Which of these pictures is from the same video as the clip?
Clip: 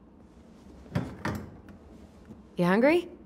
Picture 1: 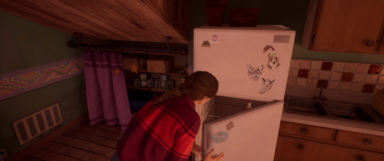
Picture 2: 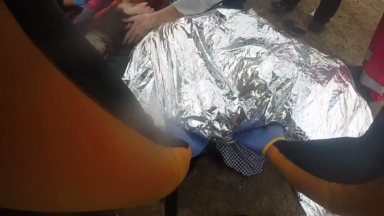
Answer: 1